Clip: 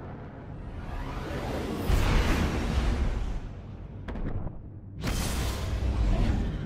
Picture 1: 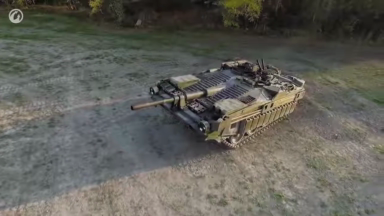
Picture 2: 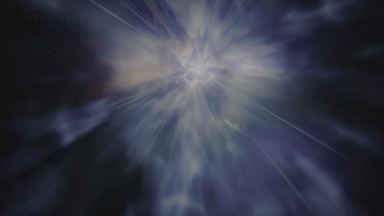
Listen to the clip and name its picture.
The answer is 2